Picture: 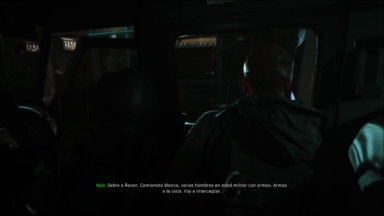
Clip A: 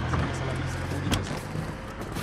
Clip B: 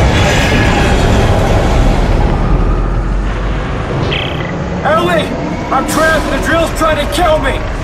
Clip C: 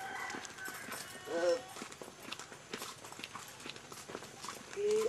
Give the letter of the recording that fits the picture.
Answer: A